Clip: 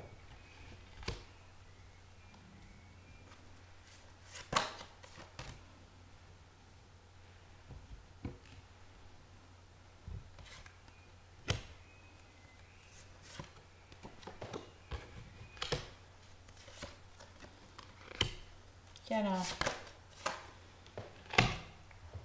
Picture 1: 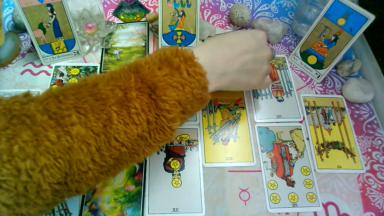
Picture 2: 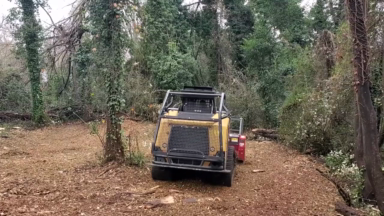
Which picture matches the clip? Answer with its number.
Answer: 1